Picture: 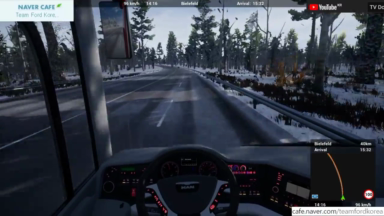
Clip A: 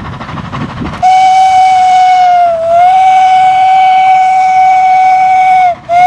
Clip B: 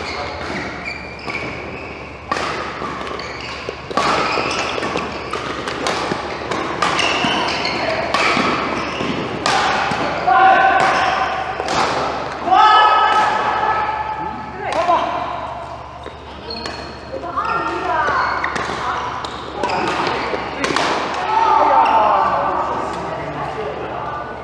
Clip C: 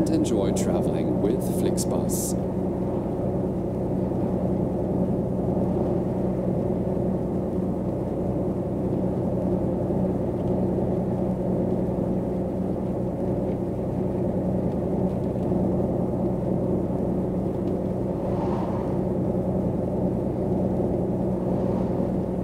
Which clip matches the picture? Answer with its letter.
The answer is C